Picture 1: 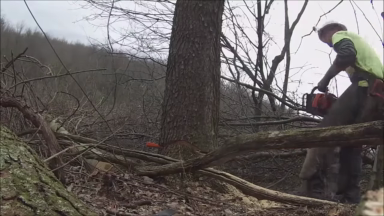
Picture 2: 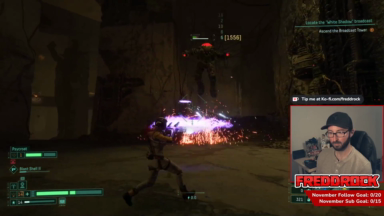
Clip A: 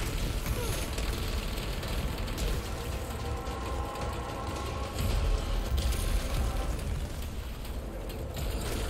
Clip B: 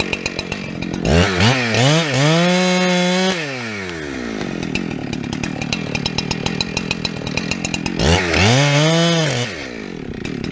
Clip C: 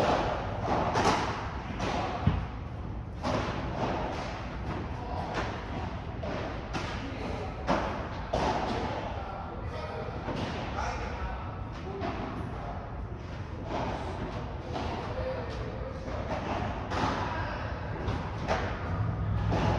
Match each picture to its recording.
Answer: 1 B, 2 A